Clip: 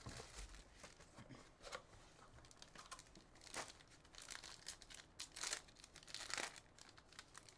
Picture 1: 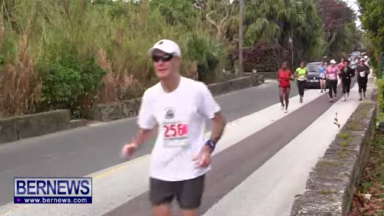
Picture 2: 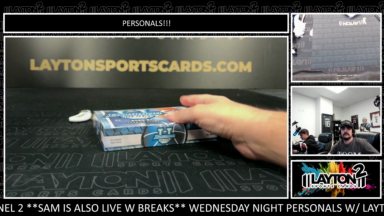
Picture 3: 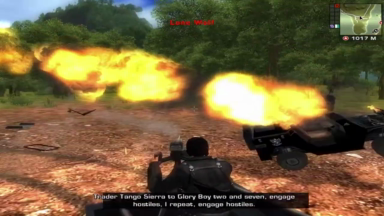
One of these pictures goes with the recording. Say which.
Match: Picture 2